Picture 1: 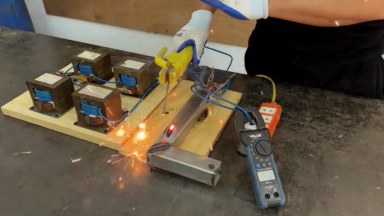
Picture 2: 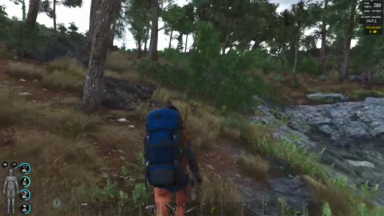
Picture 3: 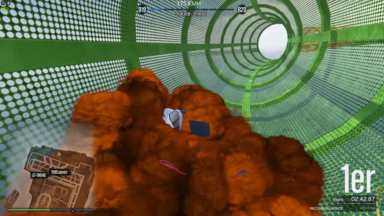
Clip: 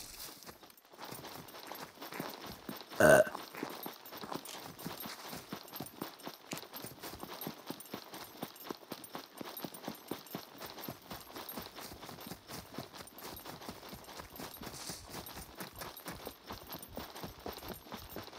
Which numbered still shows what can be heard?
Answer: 2